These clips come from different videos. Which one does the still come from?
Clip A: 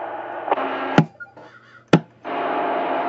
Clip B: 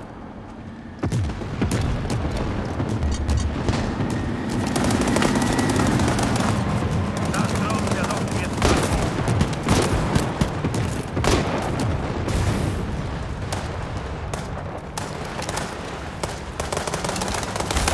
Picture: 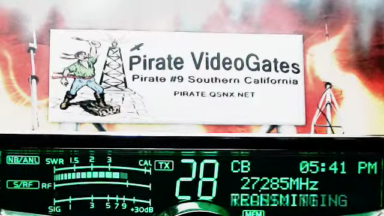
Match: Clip A